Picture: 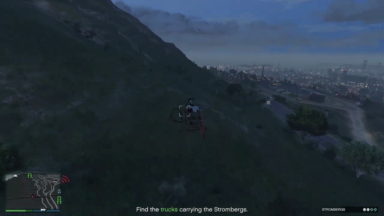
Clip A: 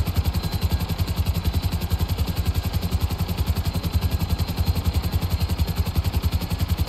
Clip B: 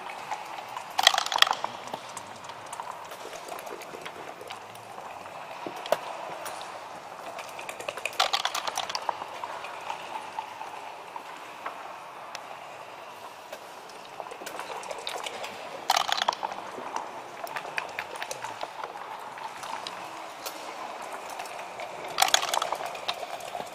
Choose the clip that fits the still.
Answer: A